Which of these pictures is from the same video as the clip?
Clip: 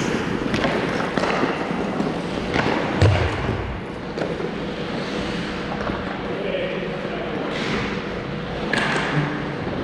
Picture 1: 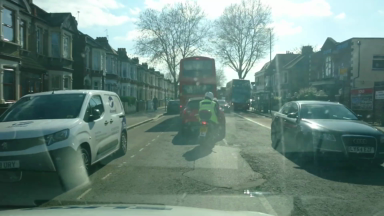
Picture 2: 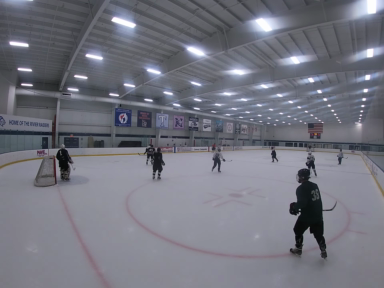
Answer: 2